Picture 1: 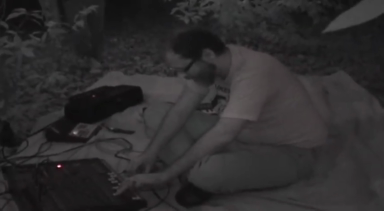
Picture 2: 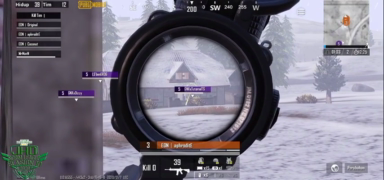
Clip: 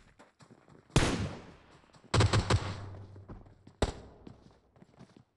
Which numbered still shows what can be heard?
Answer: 2